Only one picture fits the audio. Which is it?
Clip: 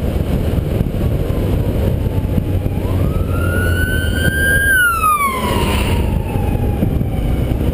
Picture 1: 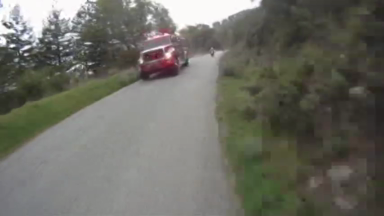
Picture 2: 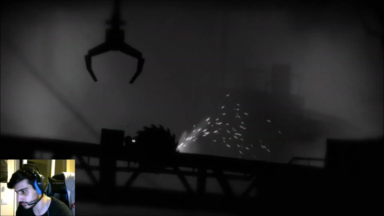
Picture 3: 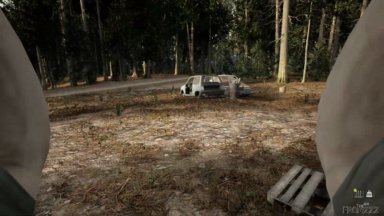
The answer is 1